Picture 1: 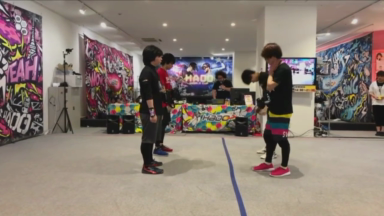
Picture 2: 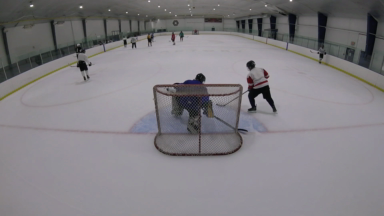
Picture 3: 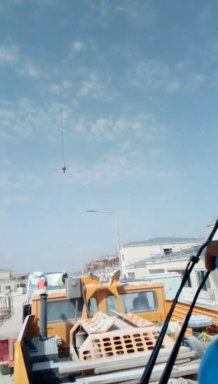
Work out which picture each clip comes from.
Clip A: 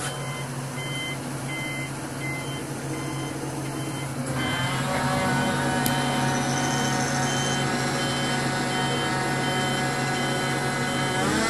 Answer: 3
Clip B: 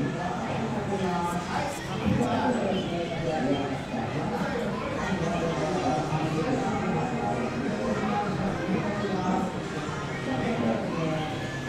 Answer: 1